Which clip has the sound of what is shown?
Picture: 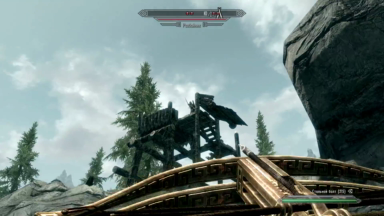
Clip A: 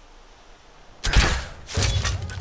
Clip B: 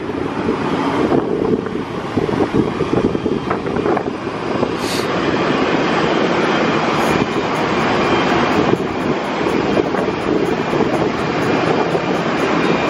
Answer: A